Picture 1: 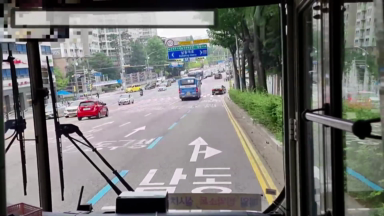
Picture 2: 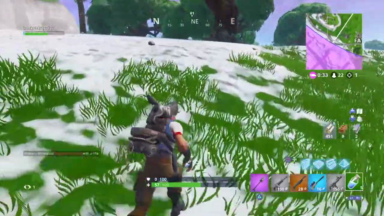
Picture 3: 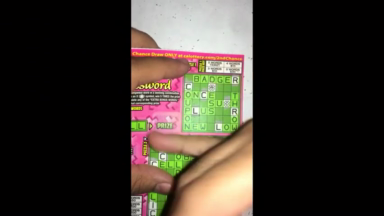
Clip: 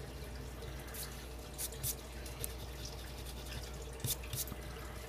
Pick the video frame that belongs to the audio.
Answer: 3